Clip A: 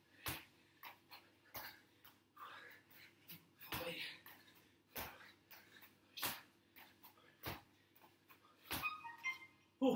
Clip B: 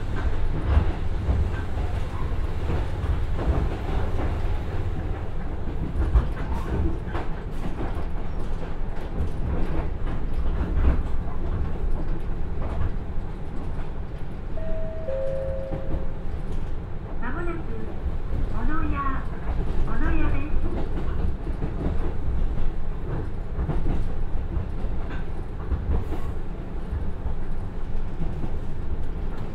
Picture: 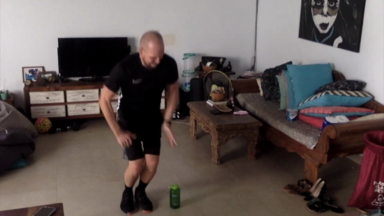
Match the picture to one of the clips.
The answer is A